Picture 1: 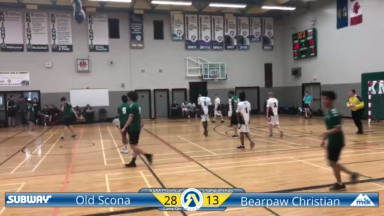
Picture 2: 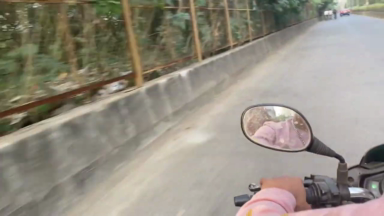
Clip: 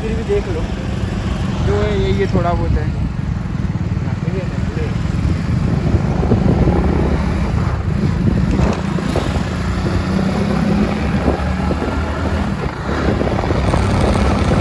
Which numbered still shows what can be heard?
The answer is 2